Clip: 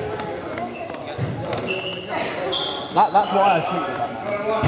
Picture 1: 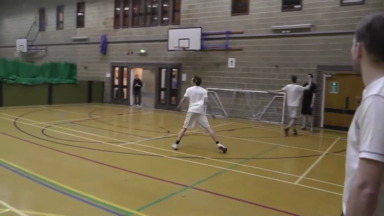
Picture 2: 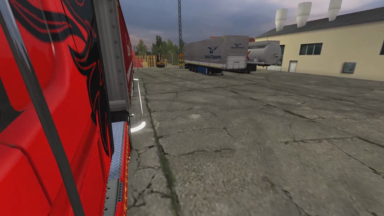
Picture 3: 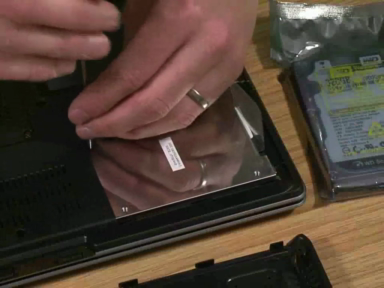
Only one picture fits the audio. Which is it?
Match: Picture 1